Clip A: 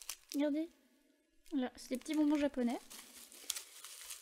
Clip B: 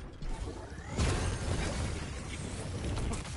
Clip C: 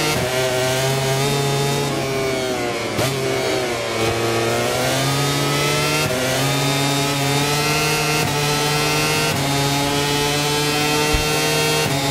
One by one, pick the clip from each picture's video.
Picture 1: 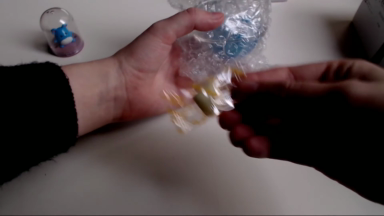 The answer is A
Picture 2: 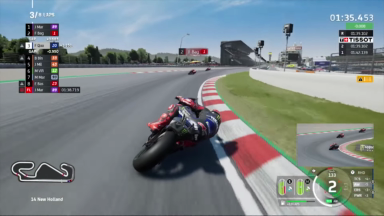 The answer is C